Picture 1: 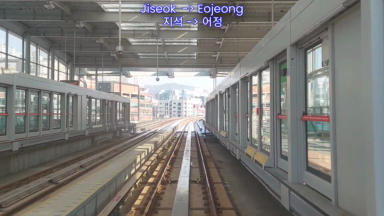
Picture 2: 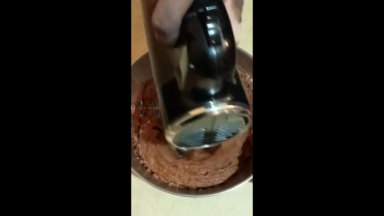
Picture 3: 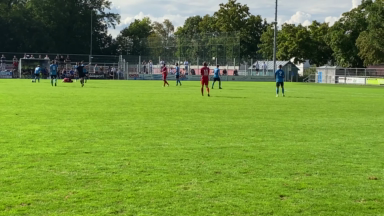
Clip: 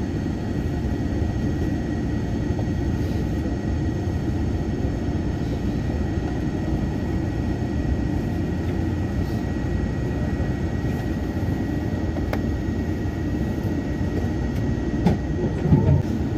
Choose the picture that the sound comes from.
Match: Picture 1